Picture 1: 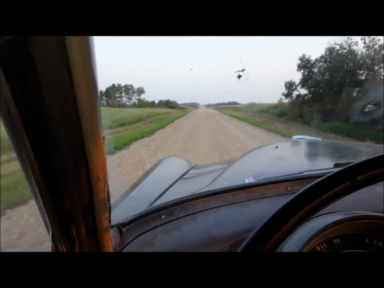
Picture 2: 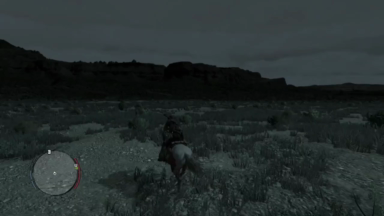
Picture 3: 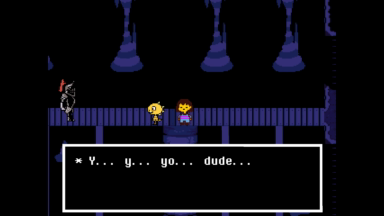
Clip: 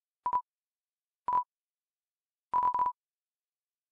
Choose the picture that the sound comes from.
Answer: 3